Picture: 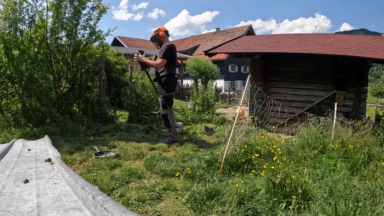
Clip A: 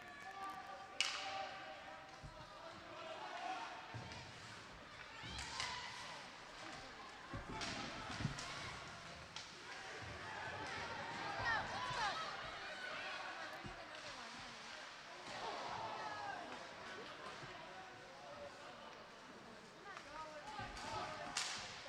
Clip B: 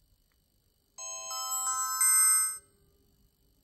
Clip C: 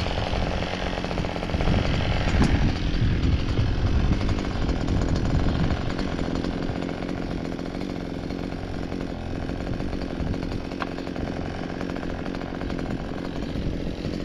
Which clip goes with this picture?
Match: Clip C